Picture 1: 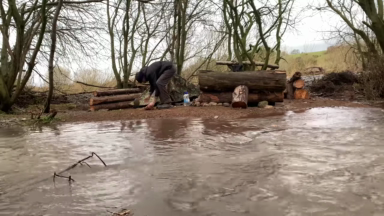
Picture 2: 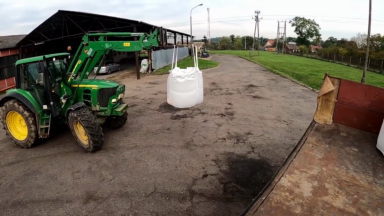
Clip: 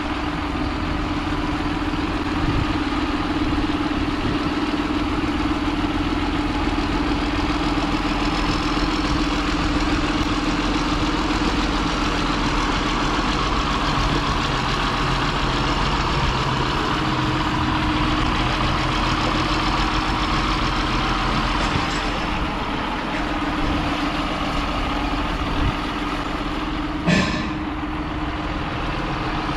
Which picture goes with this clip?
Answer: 2